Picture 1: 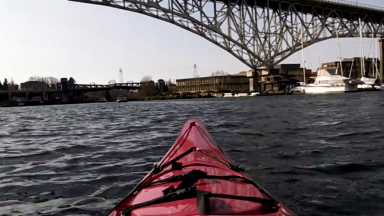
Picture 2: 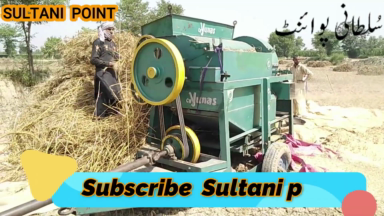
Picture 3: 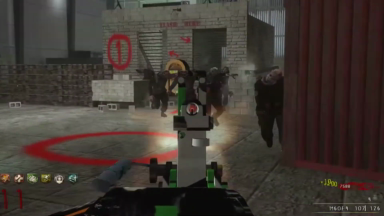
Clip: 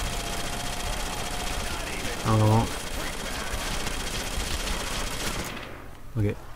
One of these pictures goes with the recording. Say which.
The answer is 3